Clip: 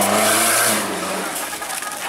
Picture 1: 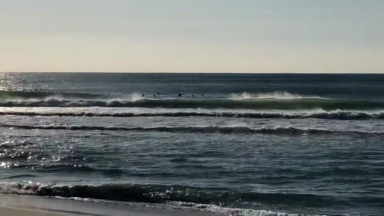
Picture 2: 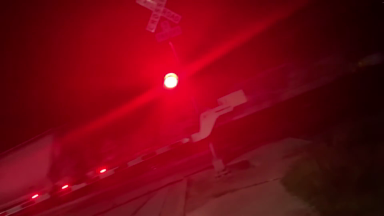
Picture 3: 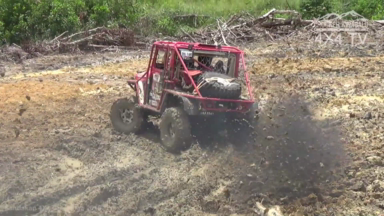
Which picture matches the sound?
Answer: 3